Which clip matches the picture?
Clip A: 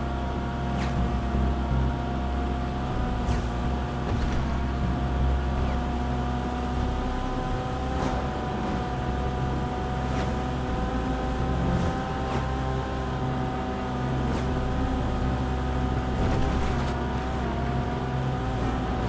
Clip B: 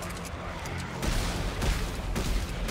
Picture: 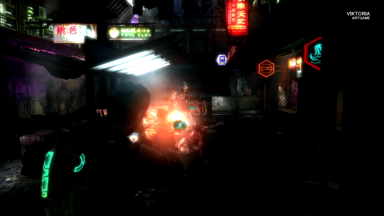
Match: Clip B